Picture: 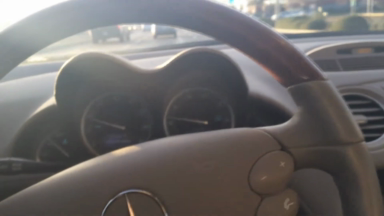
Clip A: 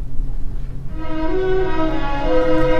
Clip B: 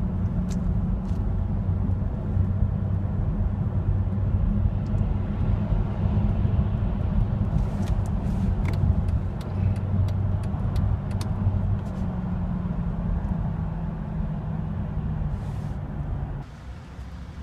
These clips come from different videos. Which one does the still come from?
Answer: B